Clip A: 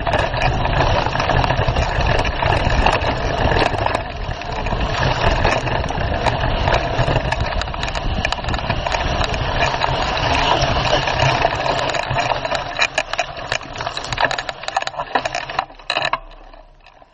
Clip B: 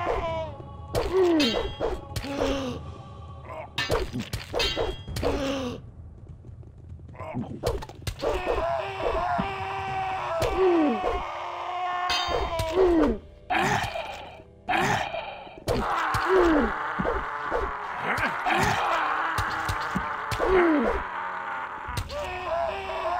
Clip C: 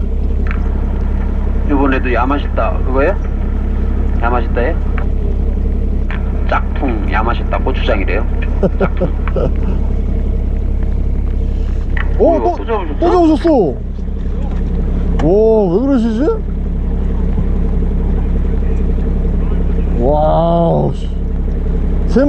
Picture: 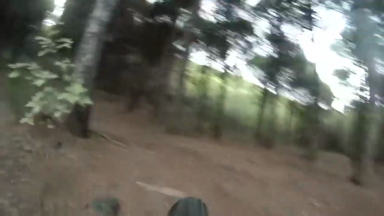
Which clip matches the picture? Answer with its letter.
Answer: A